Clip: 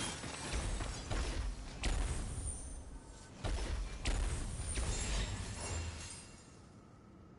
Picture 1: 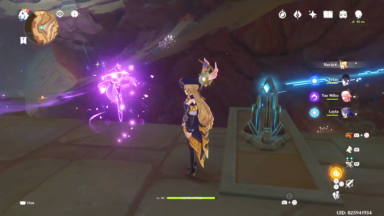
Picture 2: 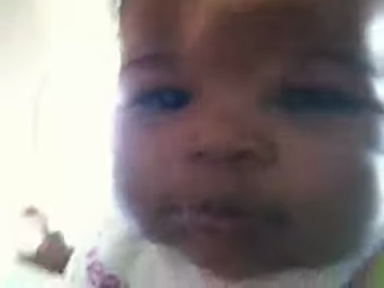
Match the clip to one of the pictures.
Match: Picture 1